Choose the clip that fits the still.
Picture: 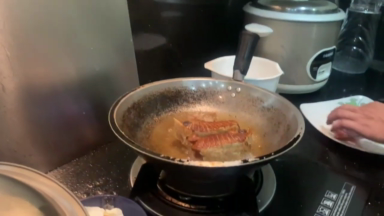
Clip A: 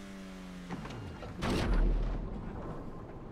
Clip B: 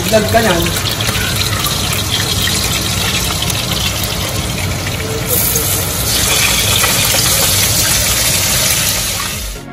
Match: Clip B